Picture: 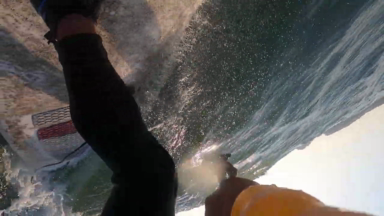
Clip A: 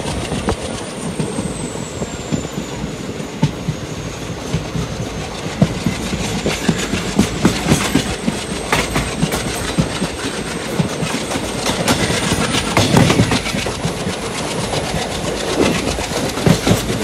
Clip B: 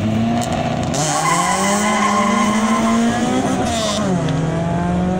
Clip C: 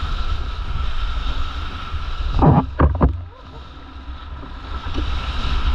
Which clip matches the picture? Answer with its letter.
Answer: C